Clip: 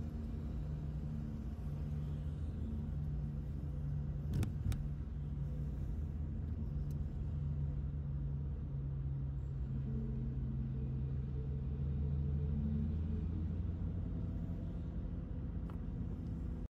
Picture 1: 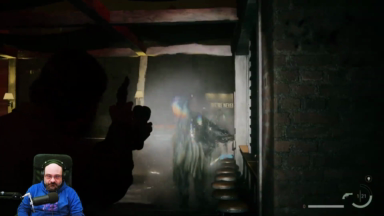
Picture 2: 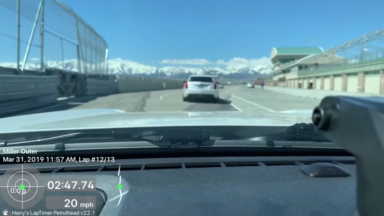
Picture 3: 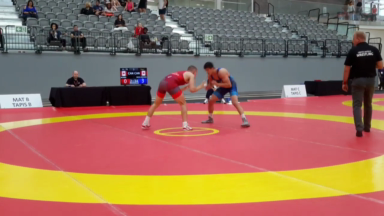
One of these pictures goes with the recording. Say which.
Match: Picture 2